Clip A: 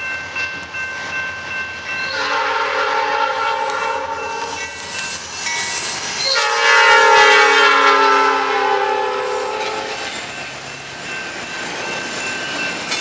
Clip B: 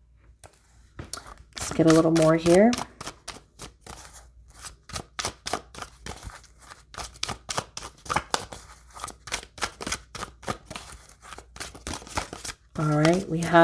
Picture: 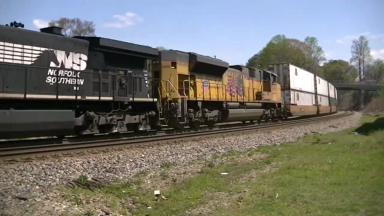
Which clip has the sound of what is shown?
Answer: A